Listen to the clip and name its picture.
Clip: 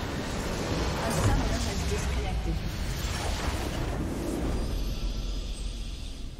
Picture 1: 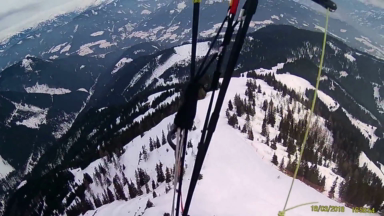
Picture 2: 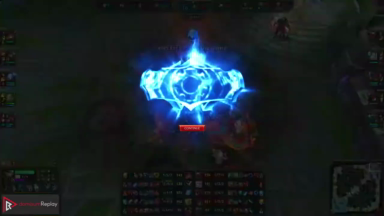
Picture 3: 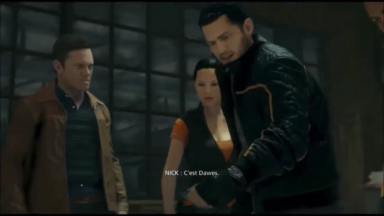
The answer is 2